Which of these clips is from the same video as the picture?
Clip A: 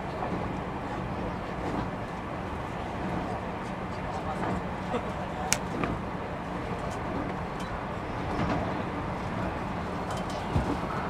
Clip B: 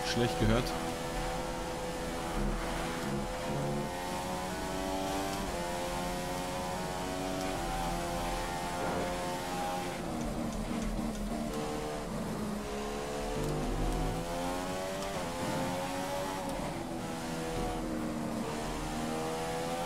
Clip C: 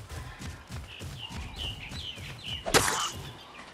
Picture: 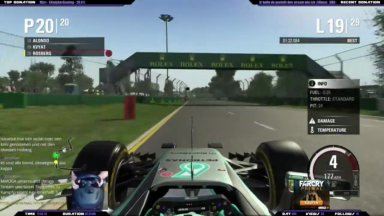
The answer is B